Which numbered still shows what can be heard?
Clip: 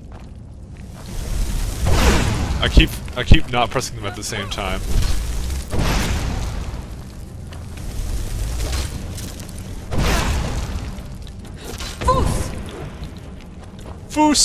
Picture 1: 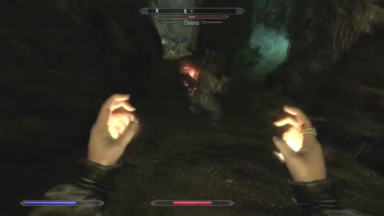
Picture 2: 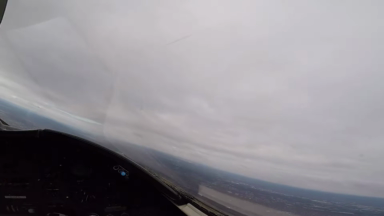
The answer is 1